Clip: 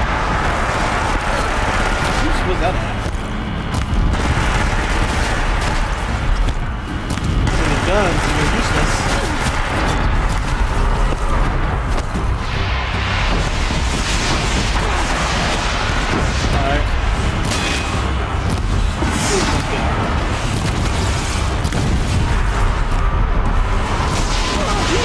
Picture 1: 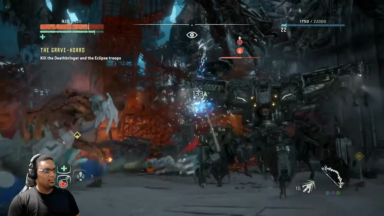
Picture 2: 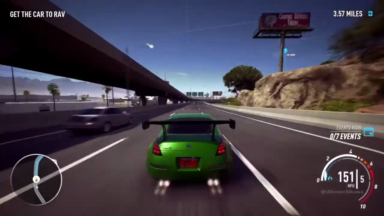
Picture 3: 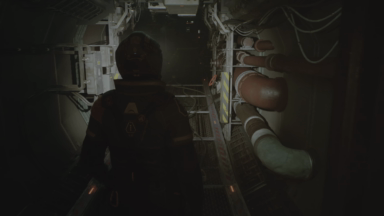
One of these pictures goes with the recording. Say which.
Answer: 1